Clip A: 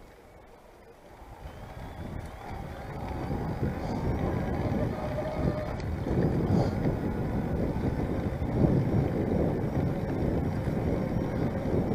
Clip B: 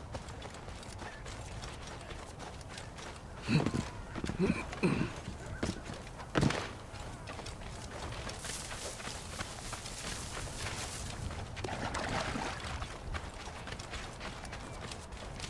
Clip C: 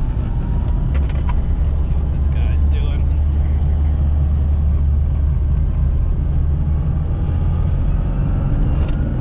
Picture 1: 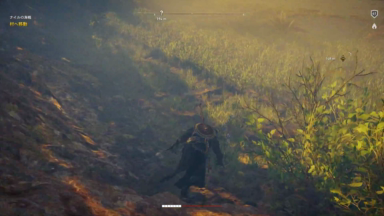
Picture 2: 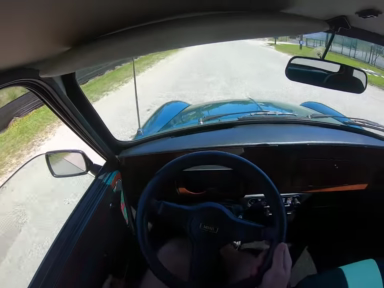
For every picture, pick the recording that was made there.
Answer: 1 B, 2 C